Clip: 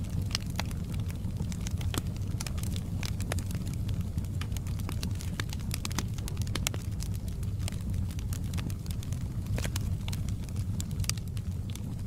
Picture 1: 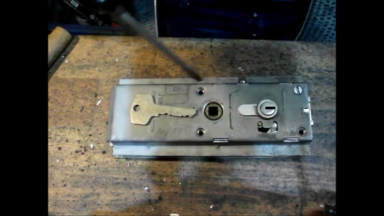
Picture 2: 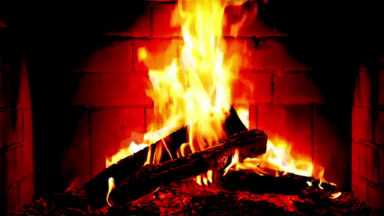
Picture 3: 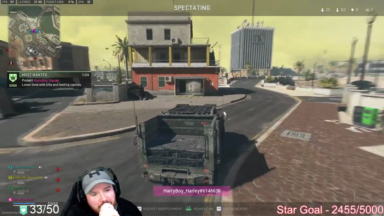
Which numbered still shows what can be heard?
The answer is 2